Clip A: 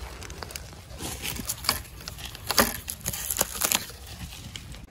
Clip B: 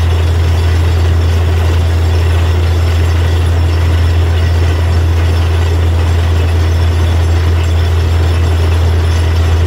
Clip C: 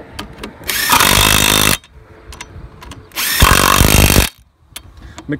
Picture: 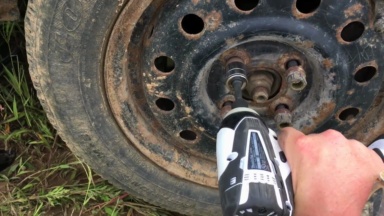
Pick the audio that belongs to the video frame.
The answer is C